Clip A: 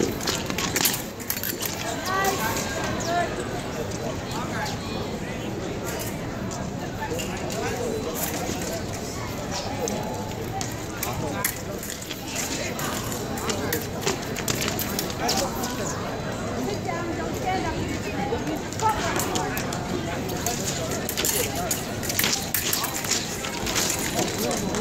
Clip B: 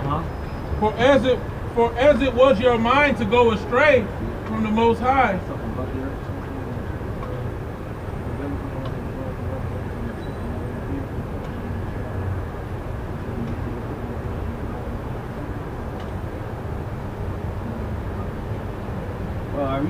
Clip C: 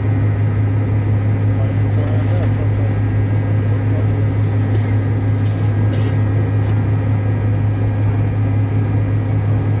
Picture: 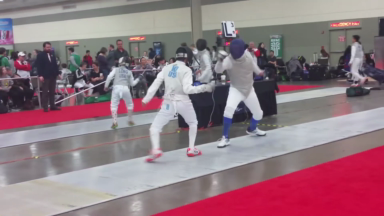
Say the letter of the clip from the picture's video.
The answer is A